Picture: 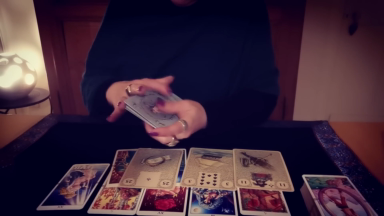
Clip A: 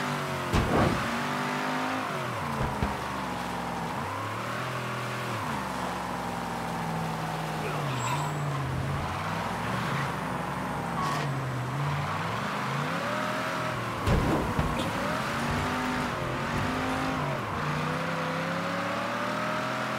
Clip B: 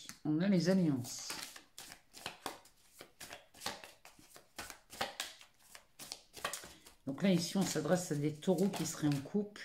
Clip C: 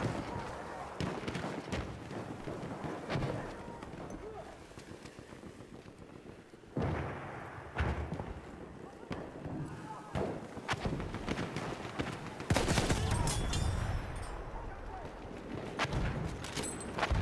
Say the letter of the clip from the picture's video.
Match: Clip B